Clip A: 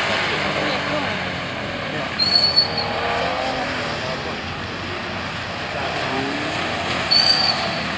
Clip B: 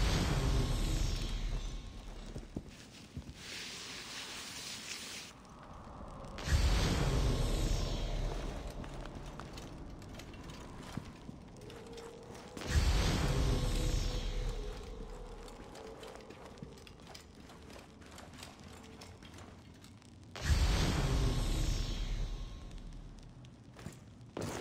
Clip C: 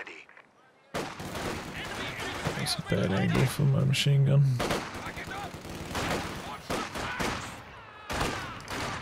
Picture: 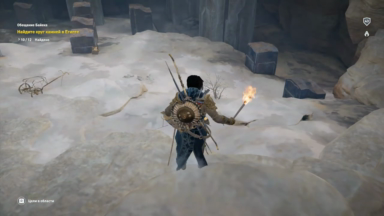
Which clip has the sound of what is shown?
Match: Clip B